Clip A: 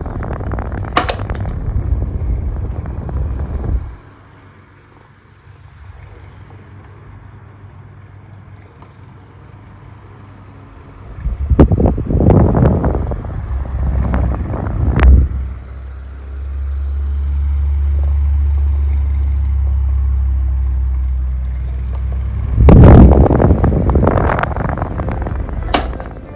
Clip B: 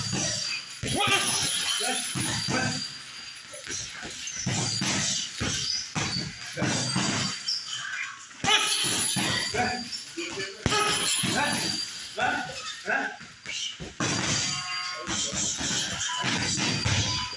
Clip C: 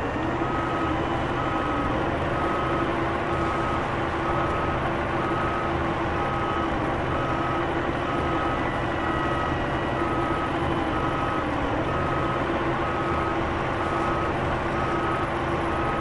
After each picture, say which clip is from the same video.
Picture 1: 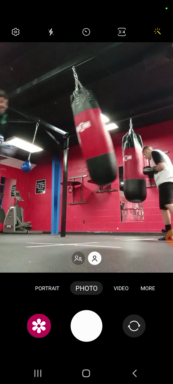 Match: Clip B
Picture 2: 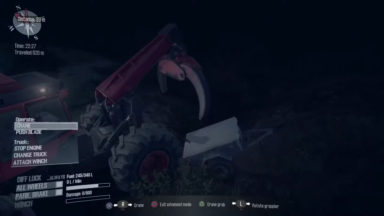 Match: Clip C